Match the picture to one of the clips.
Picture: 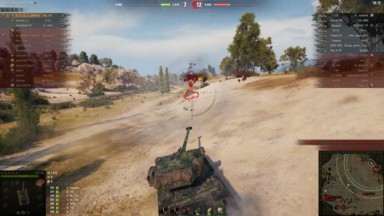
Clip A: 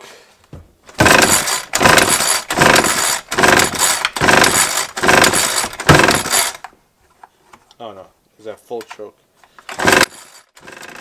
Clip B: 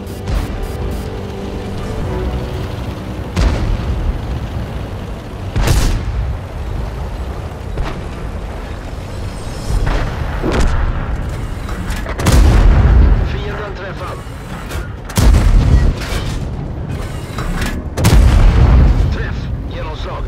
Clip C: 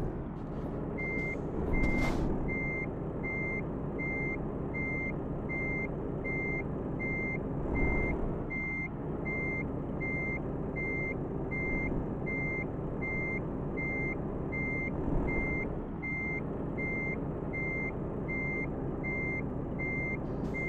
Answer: B